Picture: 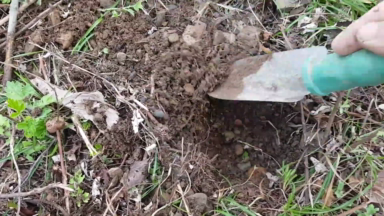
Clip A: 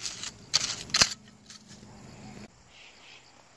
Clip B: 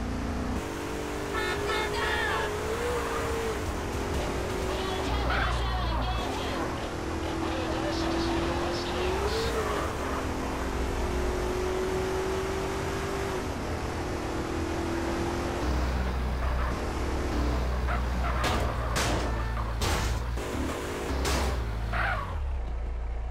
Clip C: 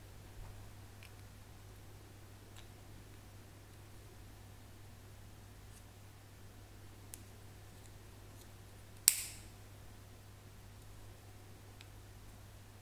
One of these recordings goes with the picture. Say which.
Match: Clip A